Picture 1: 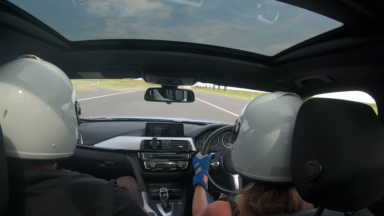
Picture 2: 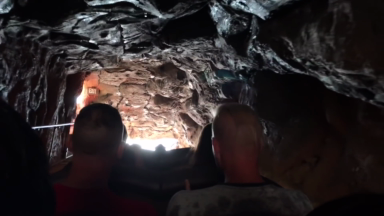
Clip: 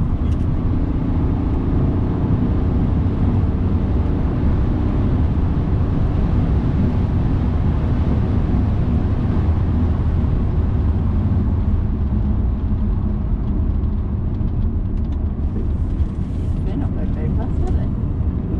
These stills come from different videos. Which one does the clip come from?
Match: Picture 1